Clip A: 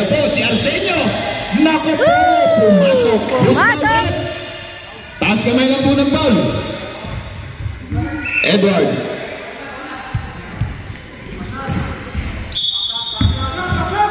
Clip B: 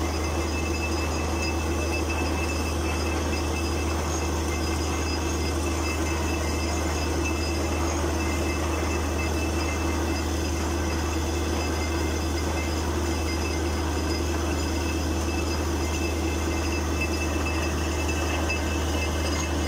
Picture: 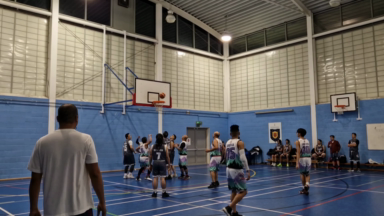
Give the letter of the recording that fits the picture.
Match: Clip A